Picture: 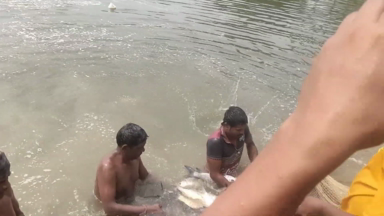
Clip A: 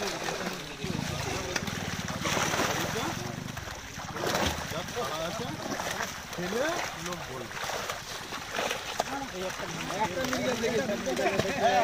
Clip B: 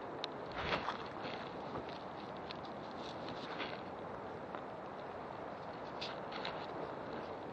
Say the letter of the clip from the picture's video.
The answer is A